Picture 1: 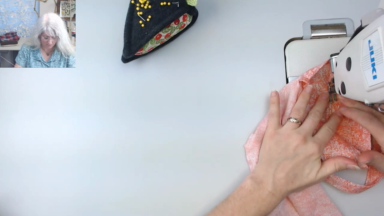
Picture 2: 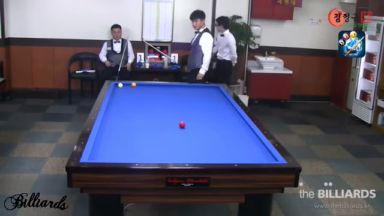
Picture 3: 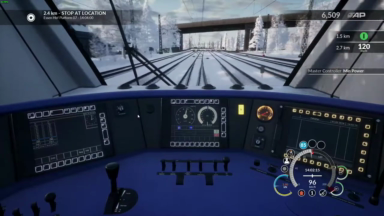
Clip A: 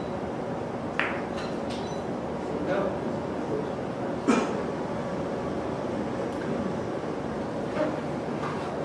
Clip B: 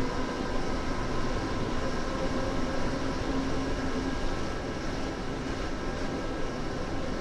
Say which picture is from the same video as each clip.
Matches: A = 2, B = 3